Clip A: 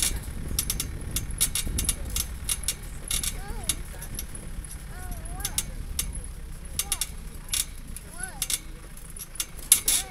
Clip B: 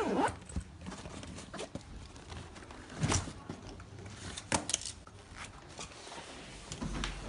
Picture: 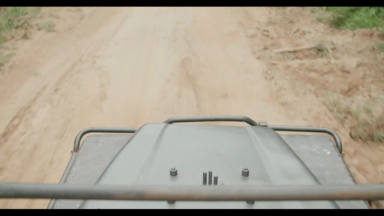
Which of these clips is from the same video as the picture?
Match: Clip A